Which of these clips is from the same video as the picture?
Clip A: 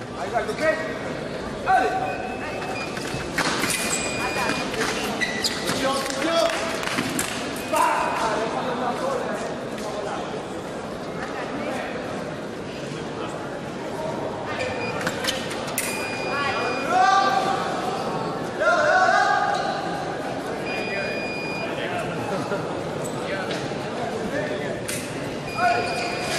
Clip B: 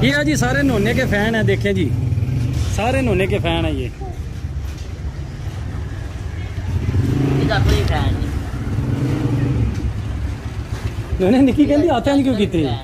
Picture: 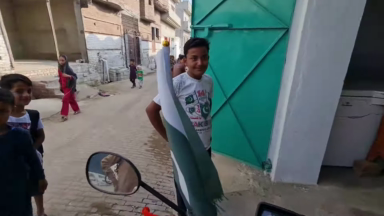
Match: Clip B